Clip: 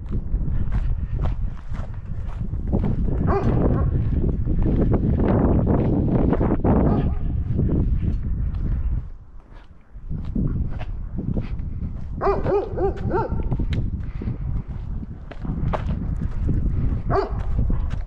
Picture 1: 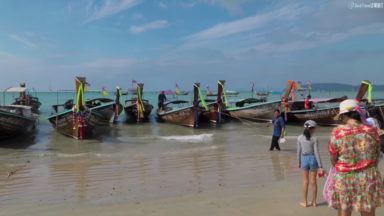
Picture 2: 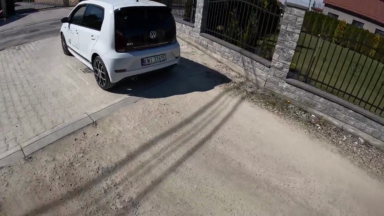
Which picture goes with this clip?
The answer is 2